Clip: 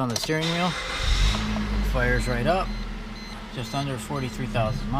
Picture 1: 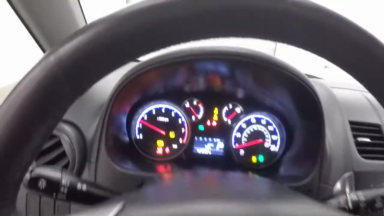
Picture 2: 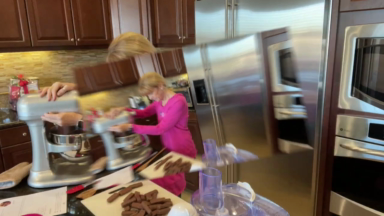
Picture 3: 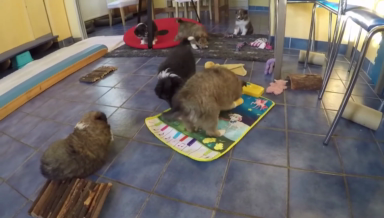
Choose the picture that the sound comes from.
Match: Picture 1